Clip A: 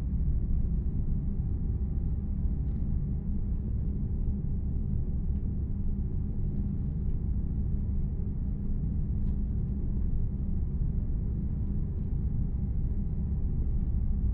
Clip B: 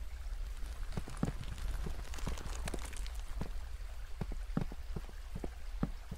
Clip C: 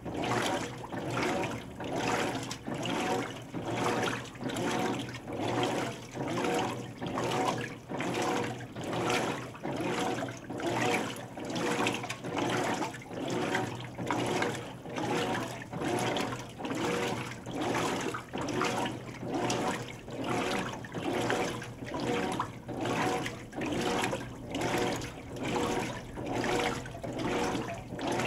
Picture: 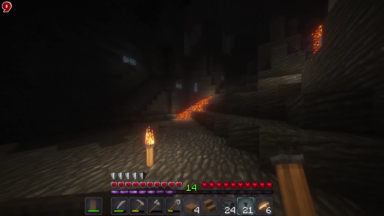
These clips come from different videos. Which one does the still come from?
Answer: B